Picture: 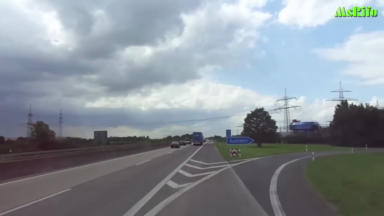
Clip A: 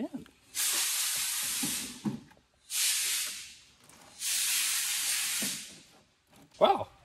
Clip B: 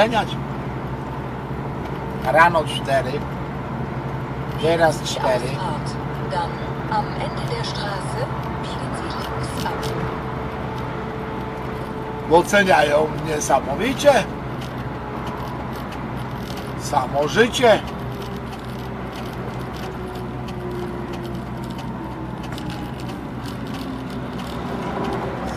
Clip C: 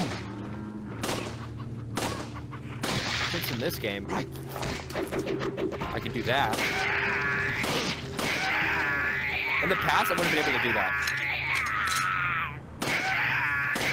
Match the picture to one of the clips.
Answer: B